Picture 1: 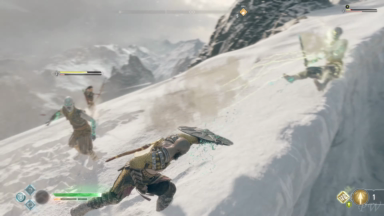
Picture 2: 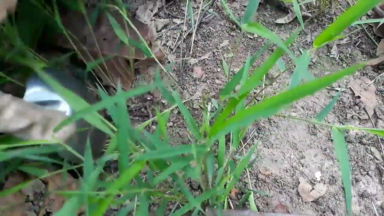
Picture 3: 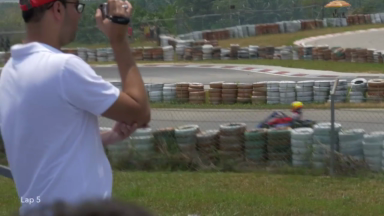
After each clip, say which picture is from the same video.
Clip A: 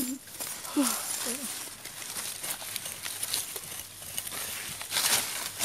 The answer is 2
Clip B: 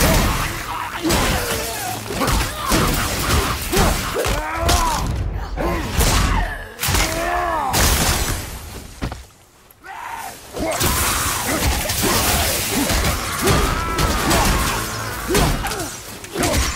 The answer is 1